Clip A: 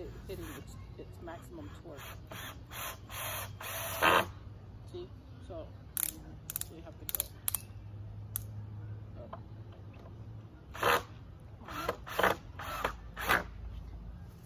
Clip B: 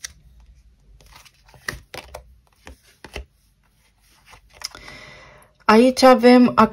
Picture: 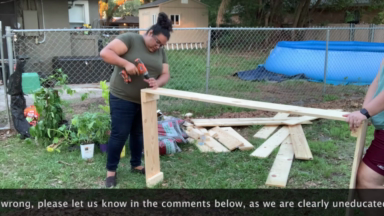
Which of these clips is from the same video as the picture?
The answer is A